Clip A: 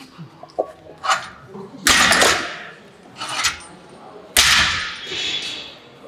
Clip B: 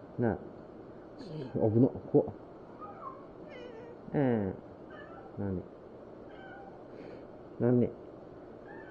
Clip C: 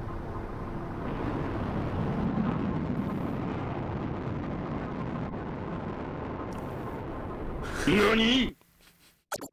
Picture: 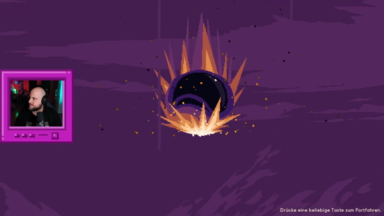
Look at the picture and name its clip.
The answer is C